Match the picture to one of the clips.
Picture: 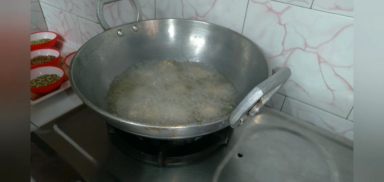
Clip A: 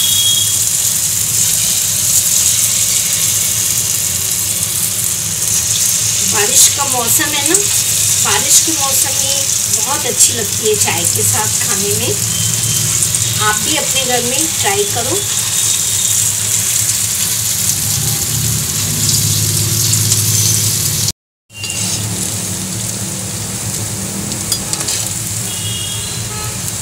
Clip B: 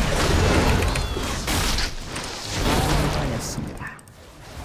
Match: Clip A